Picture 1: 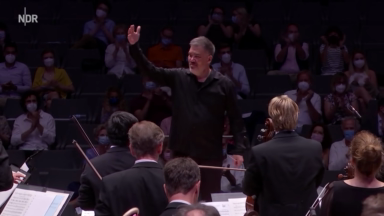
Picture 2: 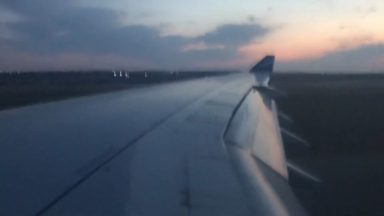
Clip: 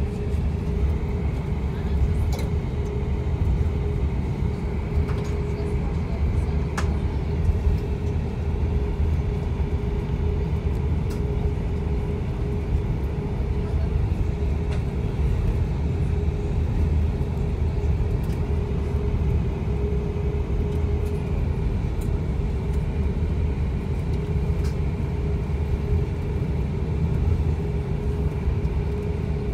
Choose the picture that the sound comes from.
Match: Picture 2